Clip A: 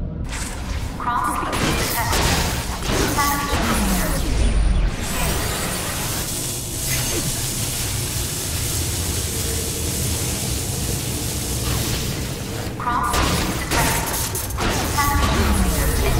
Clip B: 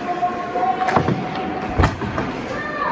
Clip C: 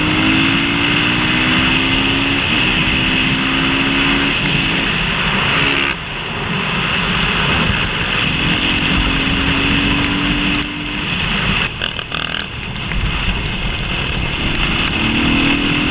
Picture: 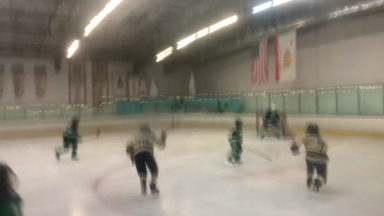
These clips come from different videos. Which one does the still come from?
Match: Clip B